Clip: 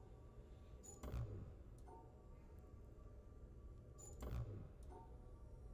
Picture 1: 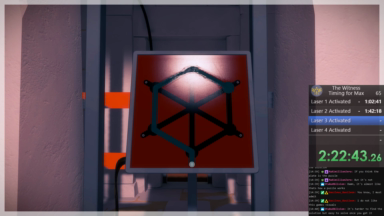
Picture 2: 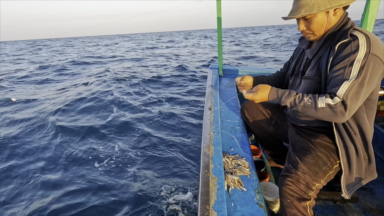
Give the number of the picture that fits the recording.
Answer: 1